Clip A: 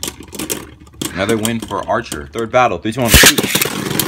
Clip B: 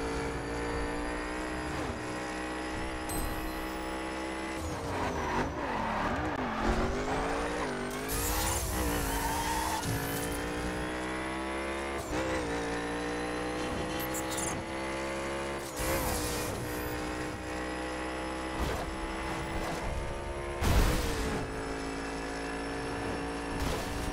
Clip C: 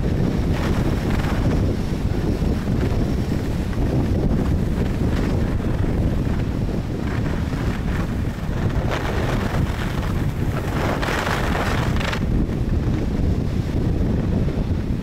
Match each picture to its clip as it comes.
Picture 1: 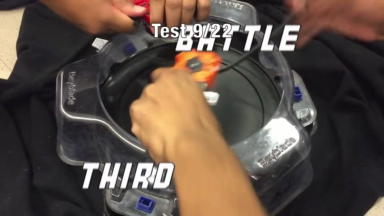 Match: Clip A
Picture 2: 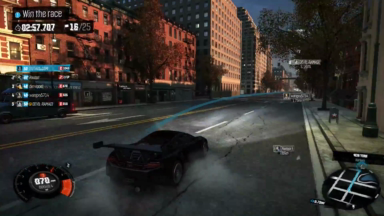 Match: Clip B